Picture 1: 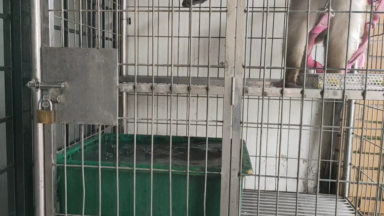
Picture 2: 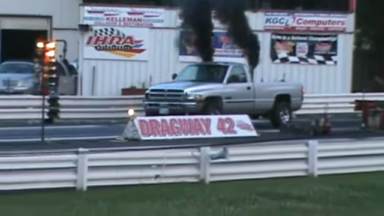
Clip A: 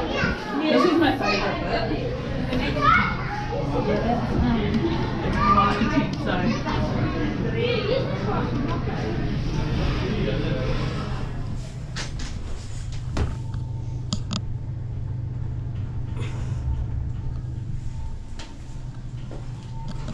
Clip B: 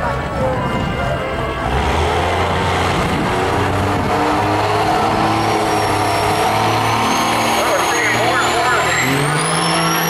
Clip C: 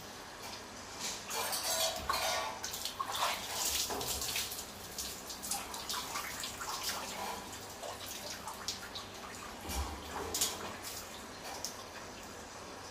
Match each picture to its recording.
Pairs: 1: C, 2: B